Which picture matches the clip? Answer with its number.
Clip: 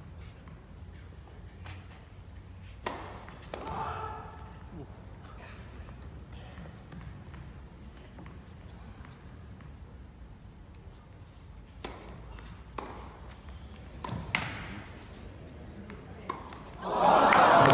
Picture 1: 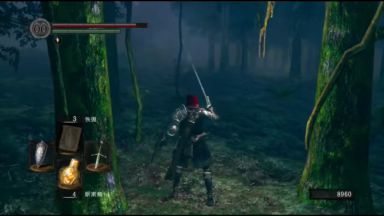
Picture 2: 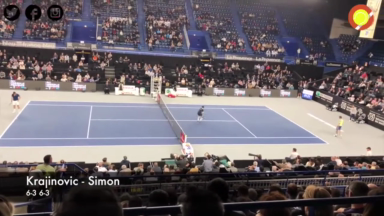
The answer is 2